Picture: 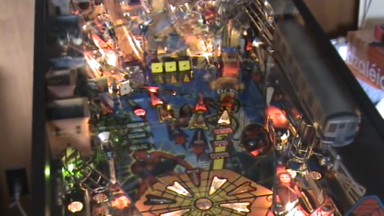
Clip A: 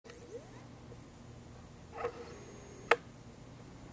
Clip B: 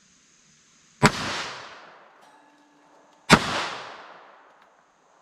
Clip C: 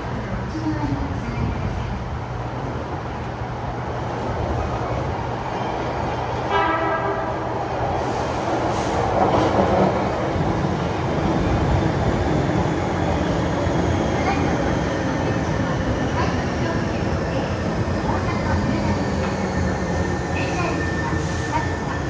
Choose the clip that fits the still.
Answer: A